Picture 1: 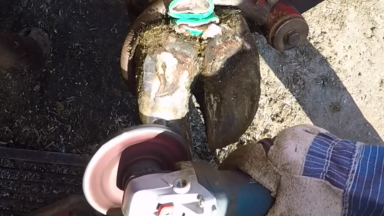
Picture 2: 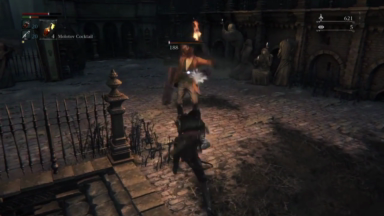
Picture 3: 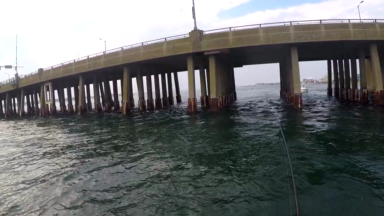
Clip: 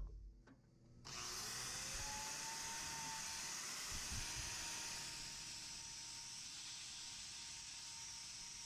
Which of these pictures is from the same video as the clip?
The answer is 1